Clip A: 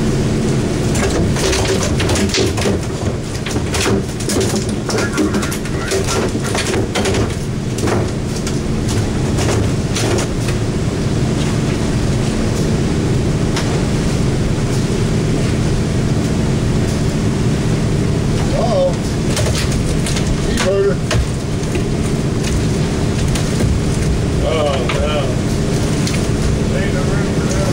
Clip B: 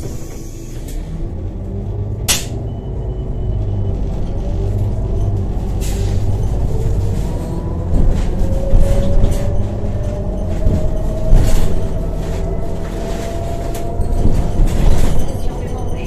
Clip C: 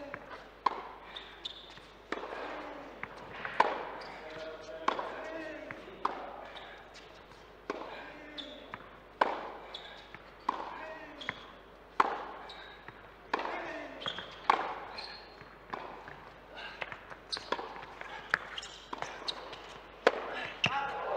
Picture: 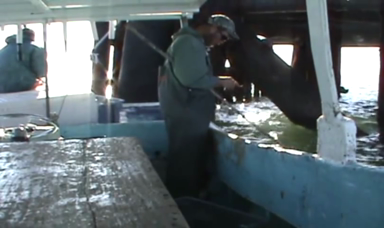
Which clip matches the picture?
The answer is A